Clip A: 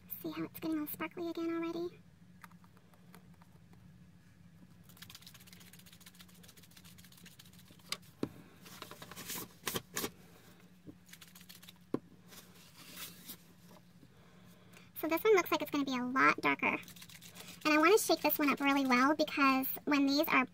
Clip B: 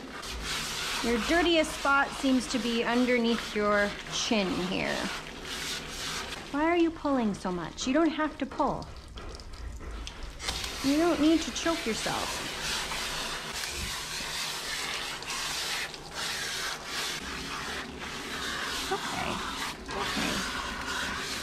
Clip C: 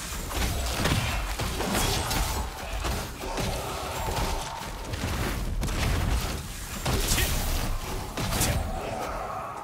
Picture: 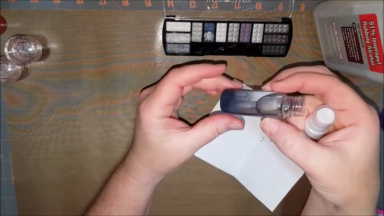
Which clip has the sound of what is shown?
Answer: A